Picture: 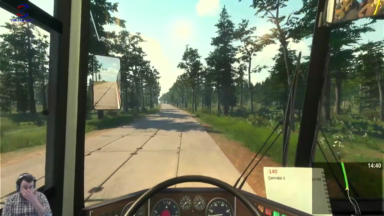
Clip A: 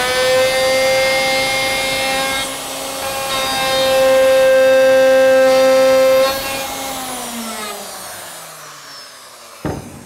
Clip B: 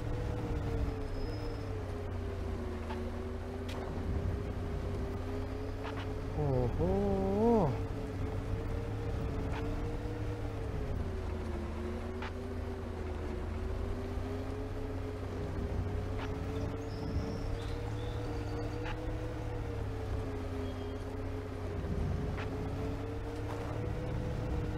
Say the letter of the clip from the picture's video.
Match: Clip B